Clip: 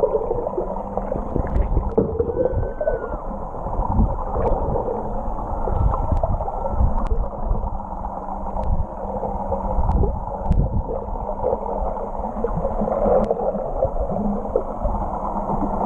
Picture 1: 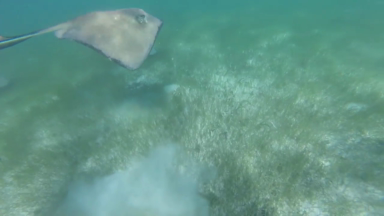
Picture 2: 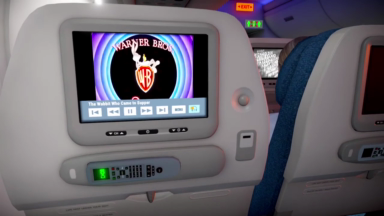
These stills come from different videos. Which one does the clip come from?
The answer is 1